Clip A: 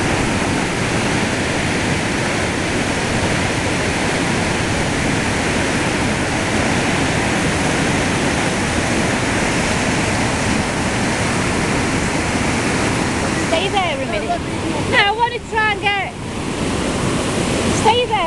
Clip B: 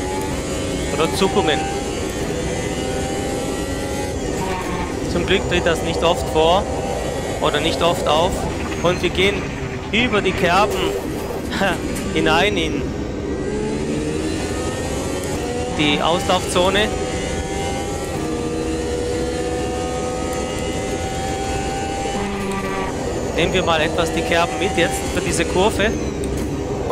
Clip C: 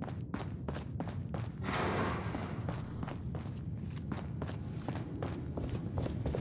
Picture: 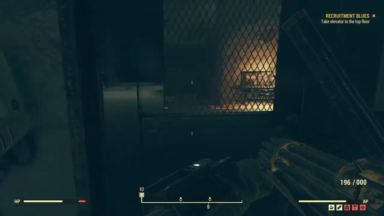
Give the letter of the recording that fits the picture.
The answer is C